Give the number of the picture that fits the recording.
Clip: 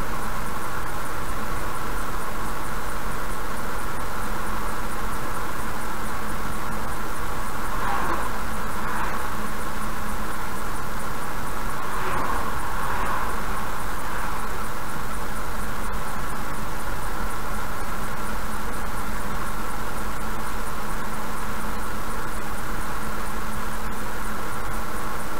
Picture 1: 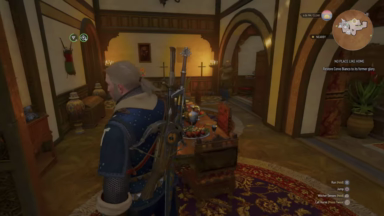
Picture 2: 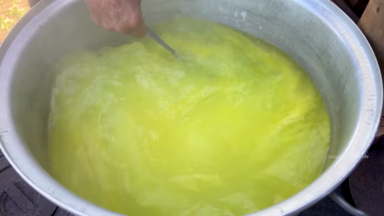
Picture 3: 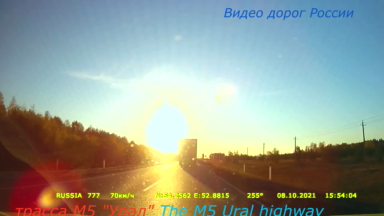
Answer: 3